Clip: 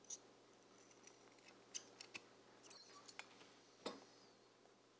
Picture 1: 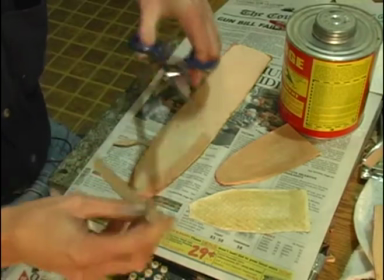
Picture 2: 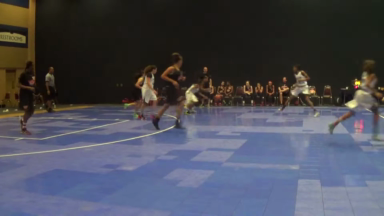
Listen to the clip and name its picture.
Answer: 1